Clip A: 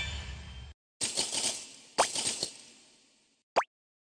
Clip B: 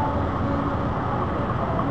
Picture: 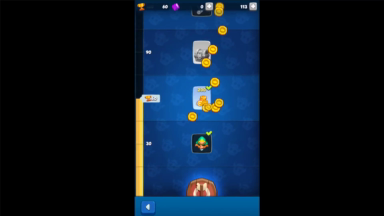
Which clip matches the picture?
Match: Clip A